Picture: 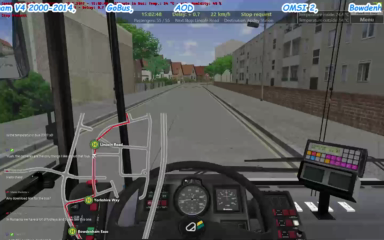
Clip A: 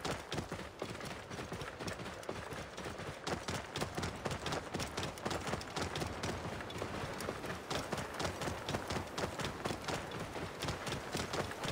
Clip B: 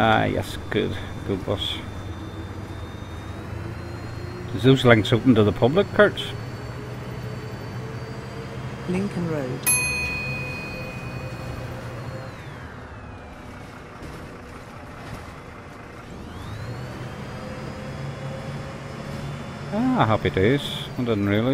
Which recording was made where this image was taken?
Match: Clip B